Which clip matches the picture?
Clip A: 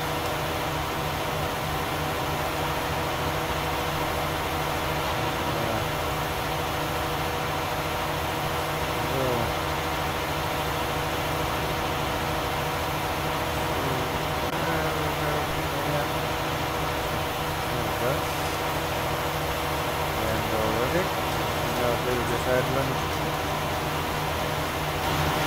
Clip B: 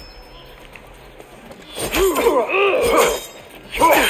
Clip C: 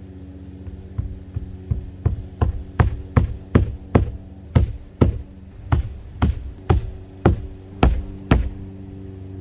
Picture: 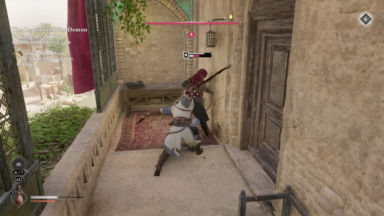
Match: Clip B